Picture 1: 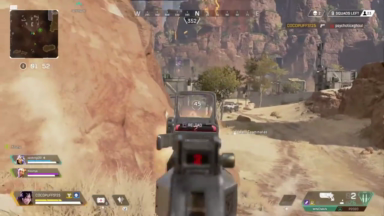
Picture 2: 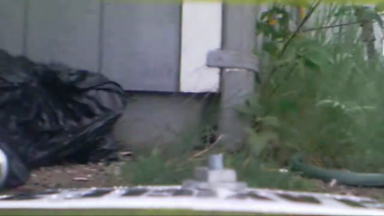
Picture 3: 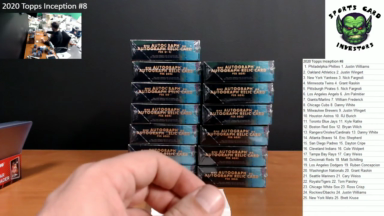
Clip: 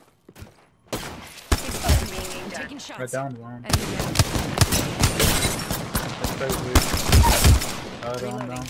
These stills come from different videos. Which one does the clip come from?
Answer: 1